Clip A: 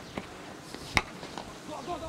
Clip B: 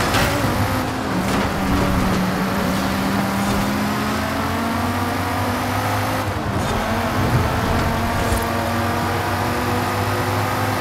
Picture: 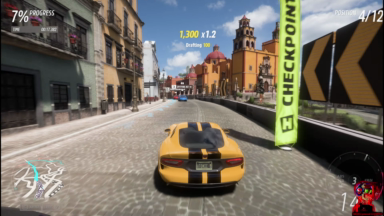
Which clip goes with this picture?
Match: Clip B